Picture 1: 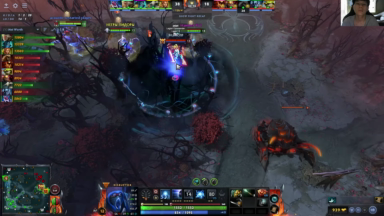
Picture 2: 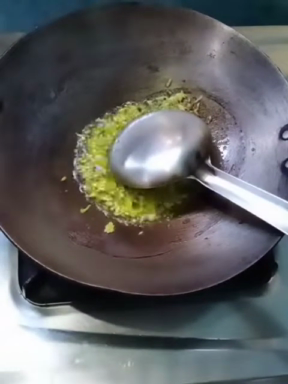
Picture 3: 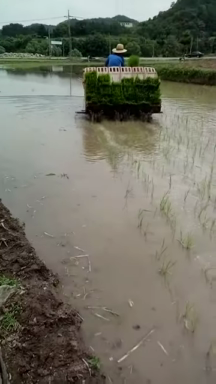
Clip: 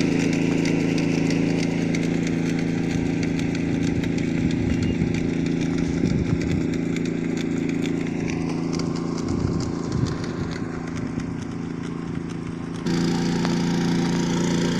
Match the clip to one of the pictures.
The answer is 3